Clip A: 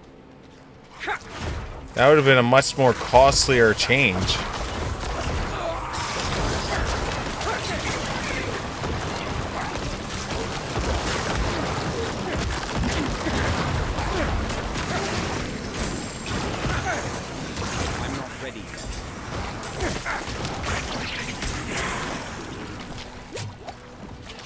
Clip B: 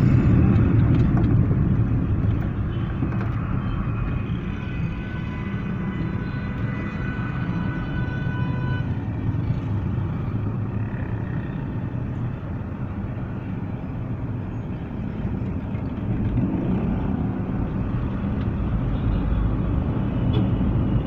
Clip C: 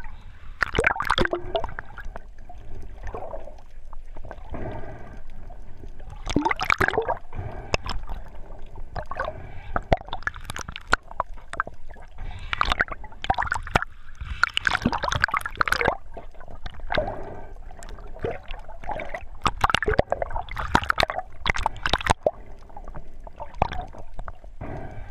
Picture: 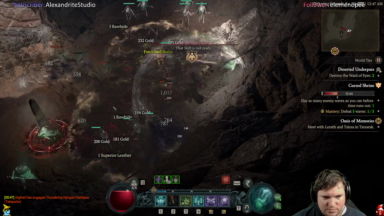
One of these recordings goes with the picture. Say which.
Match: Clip A